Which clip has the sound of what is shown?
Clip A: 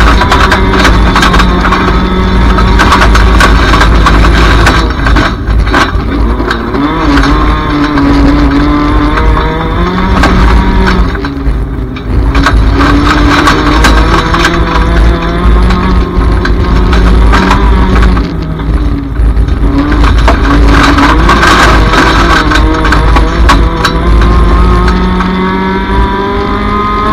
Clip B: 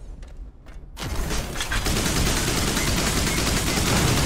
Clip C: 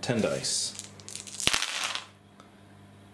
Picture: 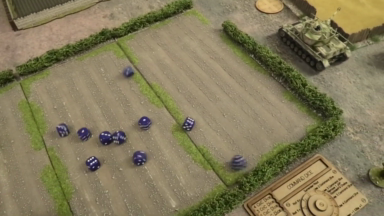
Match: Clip C